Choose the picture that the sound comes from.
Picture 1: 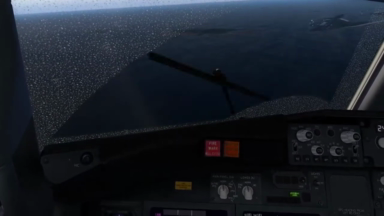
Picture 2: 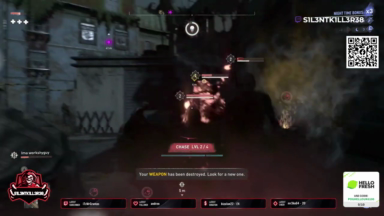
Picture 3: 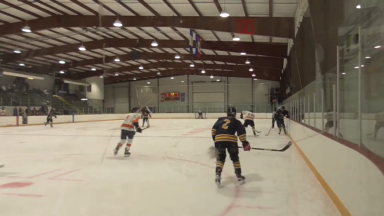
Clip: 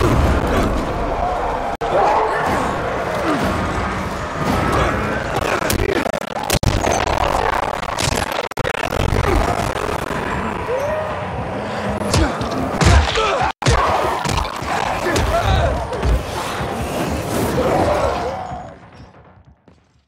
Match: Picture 2